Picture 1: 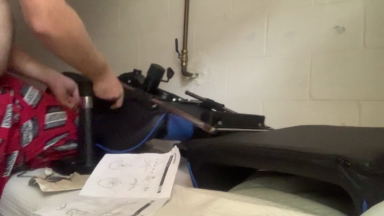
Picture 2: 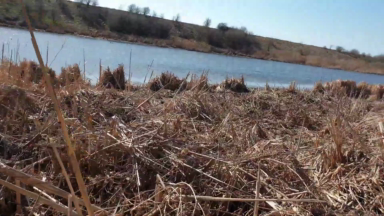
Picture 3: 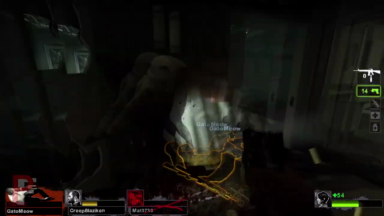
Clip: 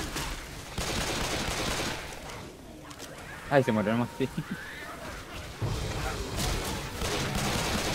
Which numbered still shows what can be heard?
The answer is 3